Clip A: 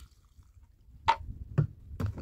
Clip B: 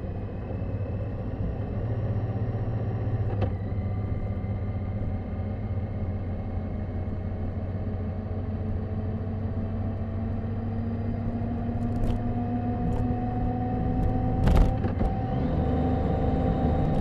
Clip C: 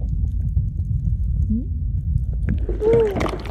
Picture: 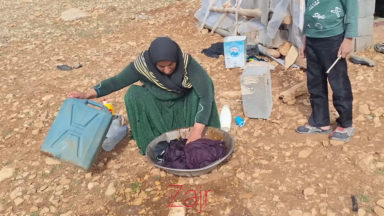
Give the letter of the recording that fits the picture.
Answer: A